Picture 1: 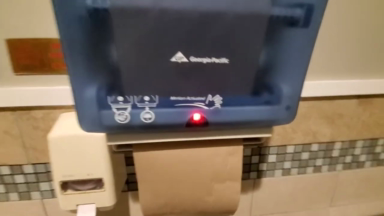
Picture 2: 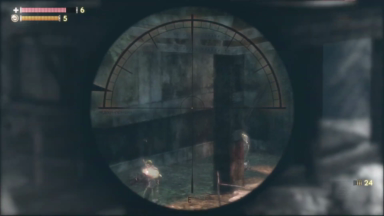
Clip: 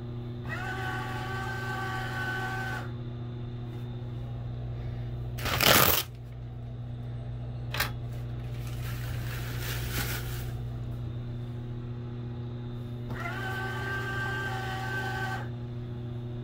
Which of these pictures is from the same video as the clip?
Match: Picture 1